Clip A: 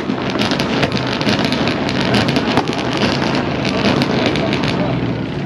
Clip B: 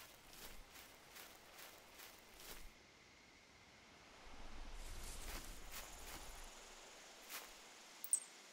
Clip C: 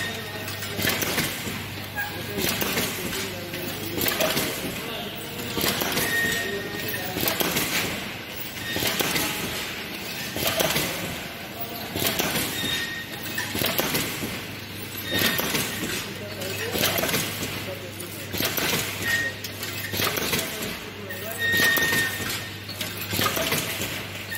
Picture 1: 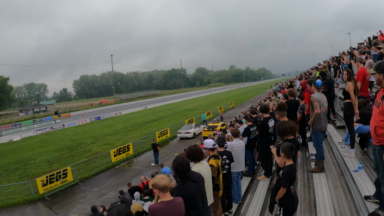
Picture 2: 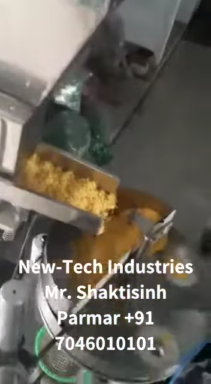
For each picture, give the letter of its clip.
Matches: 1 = A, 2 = C